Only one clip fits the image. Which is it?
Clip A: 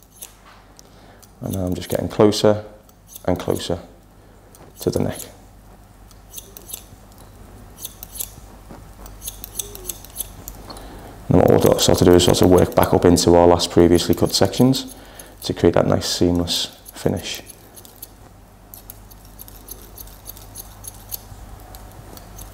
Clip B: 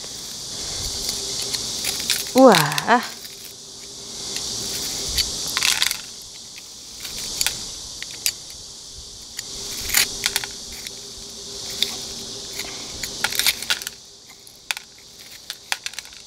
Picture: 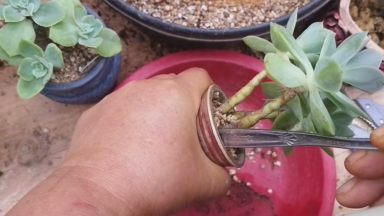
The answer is B